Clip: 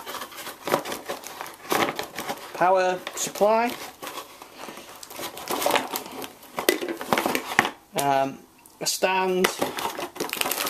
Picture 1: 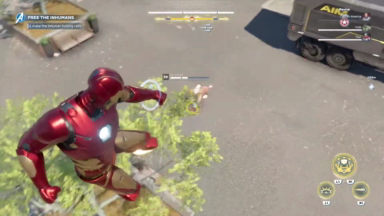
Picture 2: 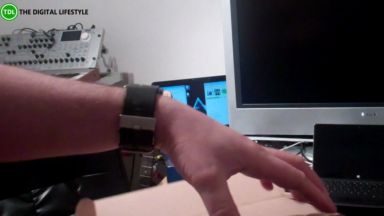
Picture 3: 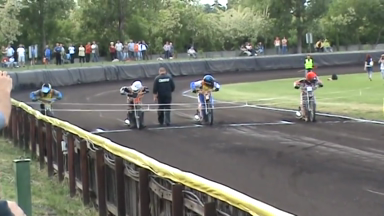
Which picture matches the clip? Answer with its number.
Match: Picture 2